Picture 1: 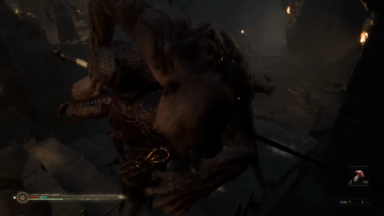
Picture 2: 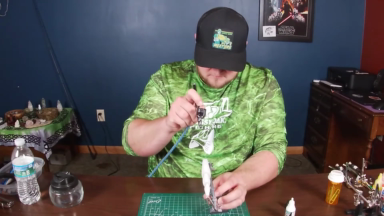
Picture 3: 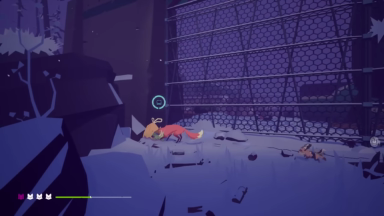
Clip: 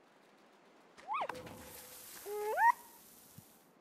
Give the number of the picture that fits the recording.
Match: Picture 3